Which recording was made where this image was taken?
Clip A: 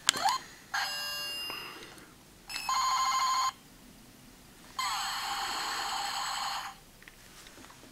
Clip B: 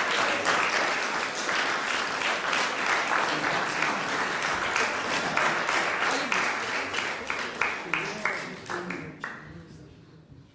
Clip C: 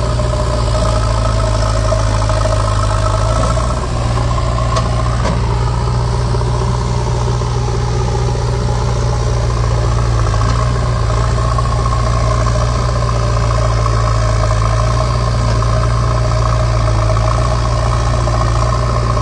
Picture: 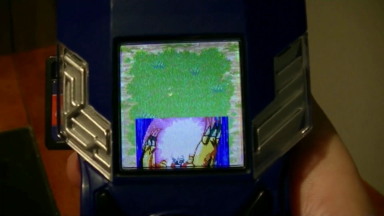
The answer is A